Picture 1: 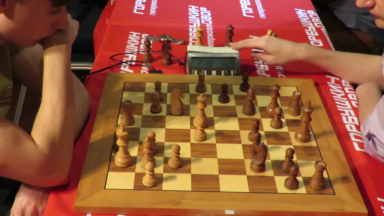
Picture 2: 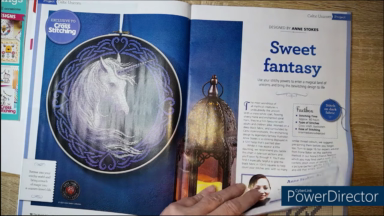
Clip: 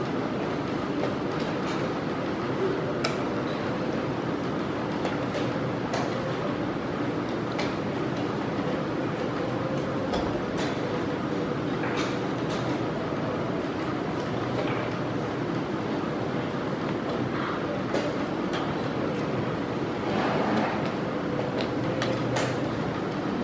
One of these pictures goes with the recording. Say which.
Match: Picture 1